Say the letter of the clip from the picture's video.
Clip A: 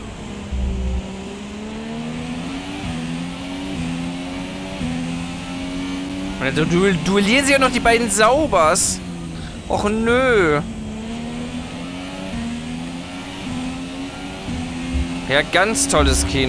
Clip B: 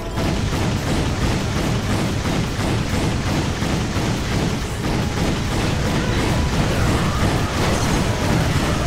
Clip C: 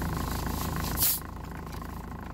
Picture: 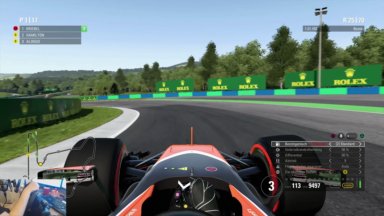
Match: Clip A